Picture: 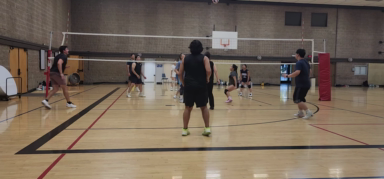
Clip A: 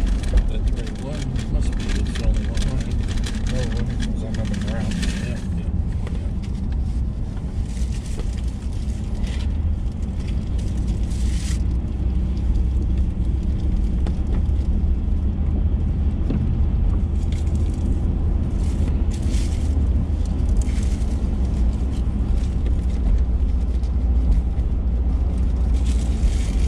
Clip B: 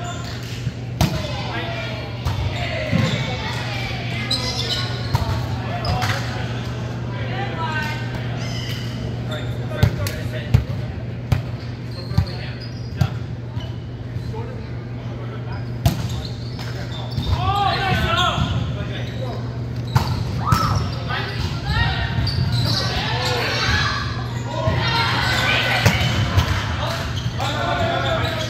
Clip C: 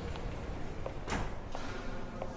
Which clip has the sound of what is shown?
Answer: B